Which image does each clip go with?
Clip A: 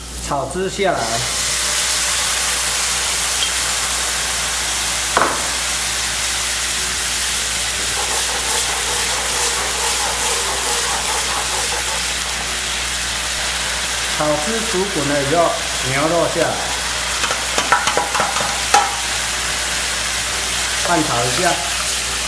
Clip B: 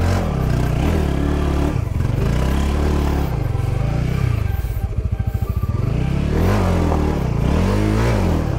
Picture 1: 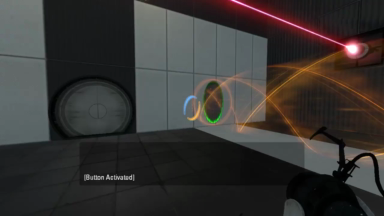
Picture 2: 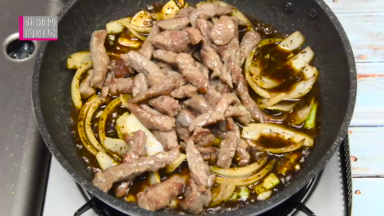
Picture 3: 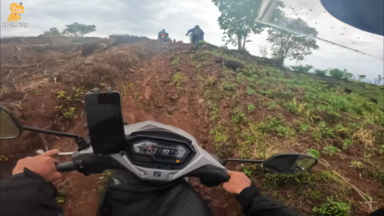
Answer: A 2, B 3